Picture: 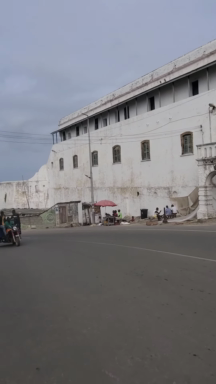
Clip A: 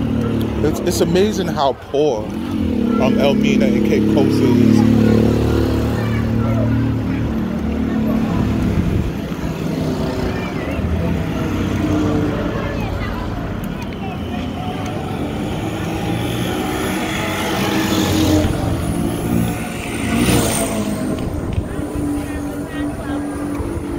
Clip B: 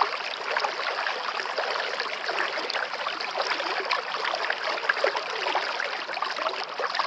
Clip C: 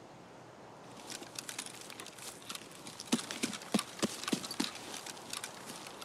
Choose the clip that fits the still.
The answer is A